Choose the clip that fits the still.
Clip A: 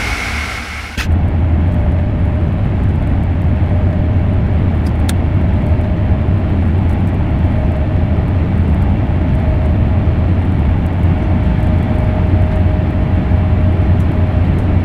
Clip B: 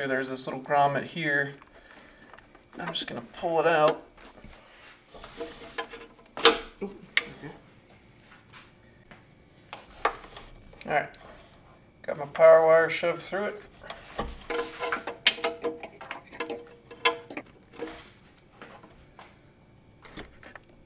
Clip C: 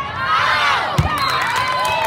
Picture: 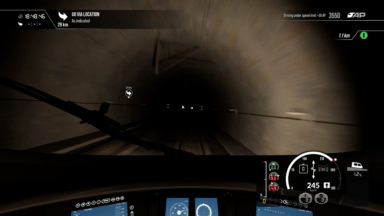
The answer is A